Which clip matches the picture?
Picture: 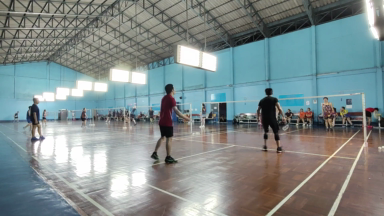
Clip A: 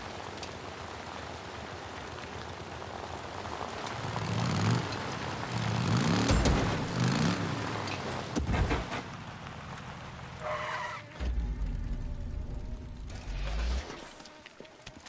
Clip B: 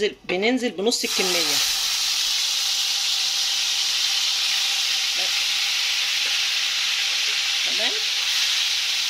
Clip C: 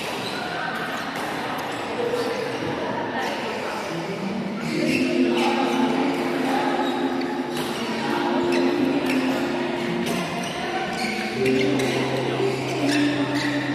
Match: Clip C